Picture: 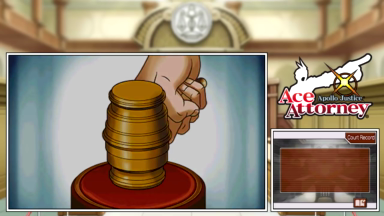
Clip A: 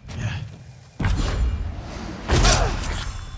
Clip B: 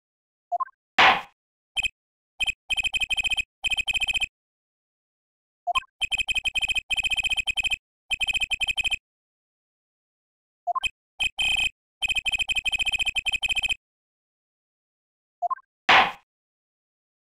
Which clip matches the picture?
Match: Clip B